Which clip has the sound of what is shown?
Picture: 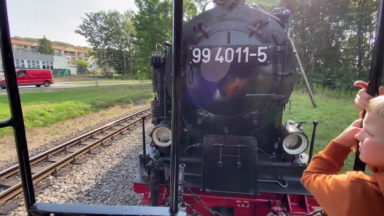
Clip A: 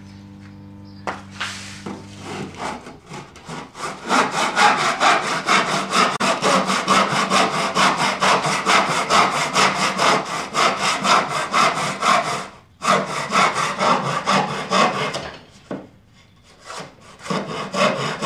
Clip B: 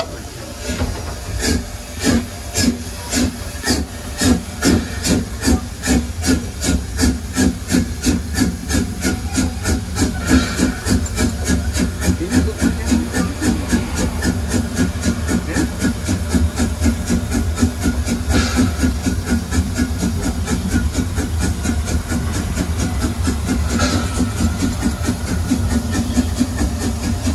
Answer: B